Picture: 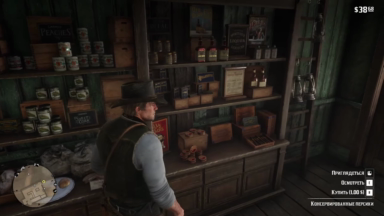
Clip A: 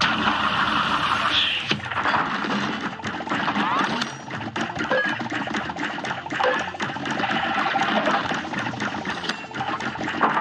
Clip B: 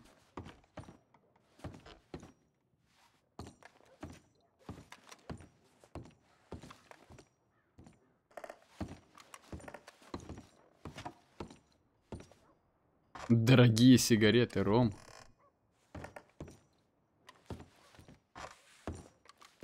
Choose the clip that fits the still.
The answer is B